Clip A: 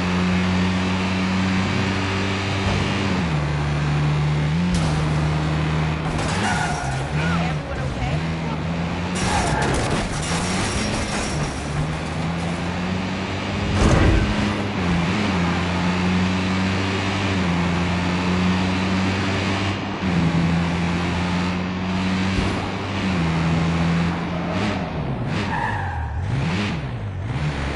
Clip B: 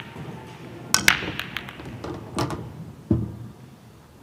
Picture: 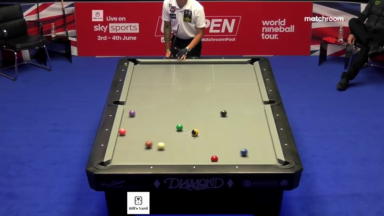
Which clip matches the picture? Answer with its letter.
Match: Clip B